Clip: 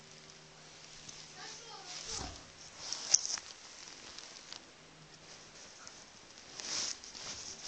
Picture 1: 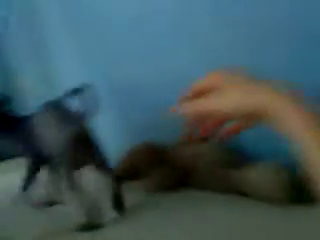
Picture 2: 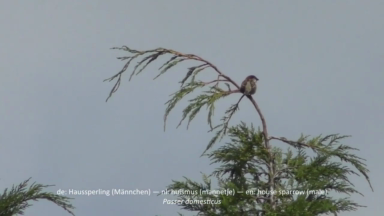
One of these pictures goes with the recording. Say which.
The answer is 1